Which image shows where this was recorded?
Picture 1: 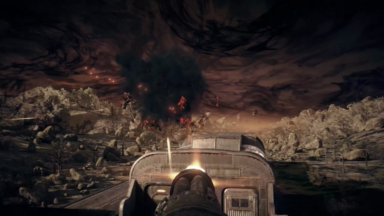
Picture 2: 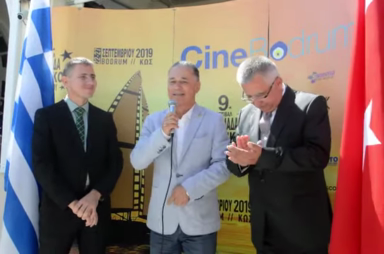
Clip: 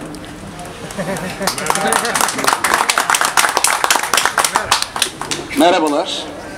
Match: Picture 2